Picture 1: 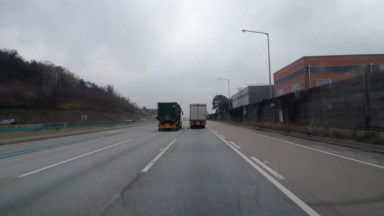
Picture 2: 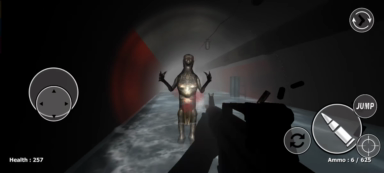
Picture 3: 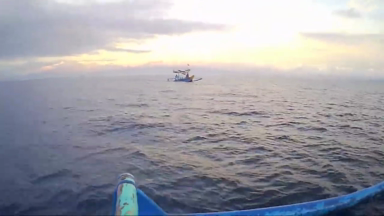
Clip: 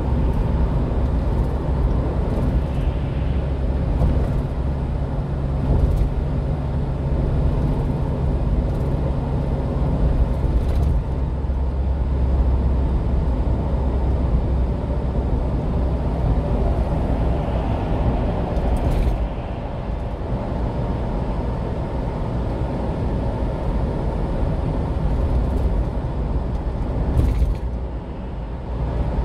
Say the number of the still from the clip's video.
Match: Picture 1